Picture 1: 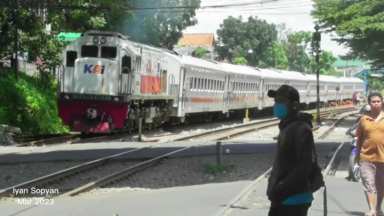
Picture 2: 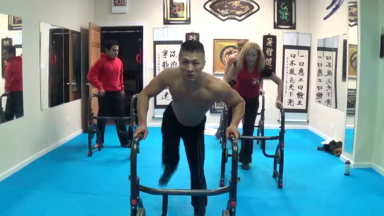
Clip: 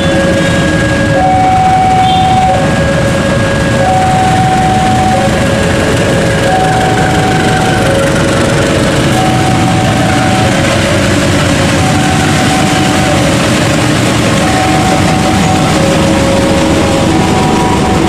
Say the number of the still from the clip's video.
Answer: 1